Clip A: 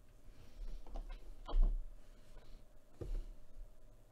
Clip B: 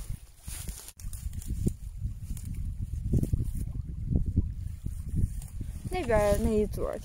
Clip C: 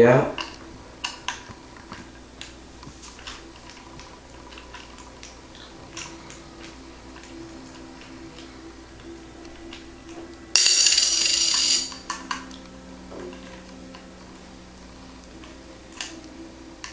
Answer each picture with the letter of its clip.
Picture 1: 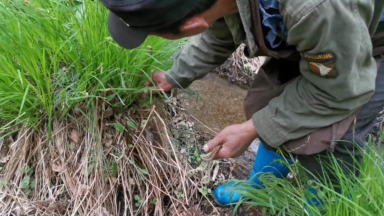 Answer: B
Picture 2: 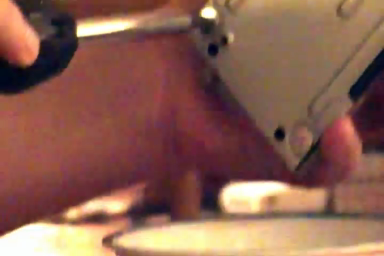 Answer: C